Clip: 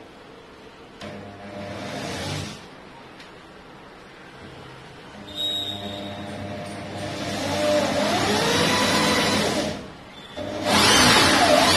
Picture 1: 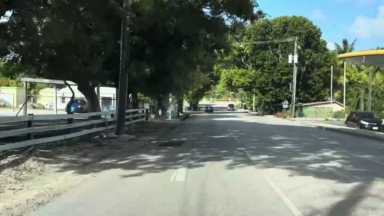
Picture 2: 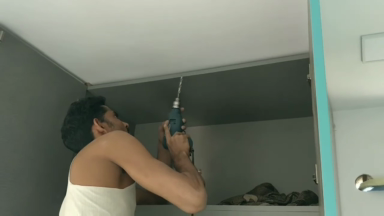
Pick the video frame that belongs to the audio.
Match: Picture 2